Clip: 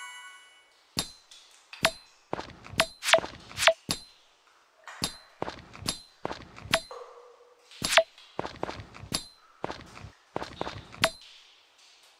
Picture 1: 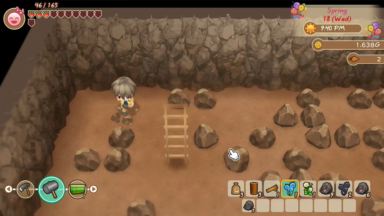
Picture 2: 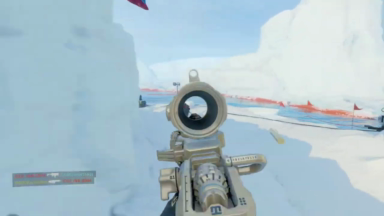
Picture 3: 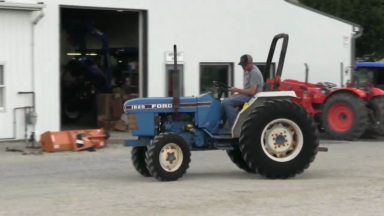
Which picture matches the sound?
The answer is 1